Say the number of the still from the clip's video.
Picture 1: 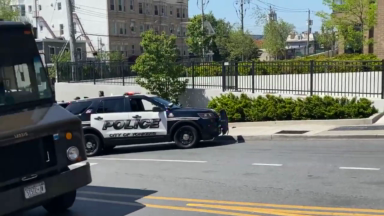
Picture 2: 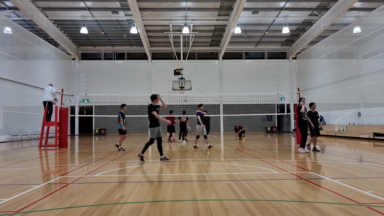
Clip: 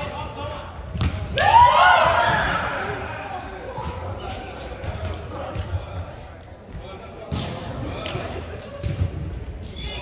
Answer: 2